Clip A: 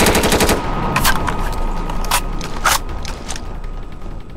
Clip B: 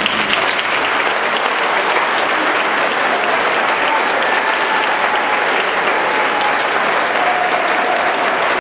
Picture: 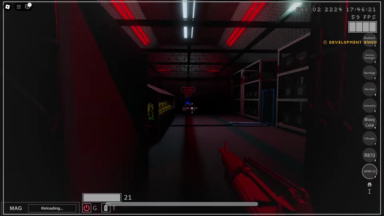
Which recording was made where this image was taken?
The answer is A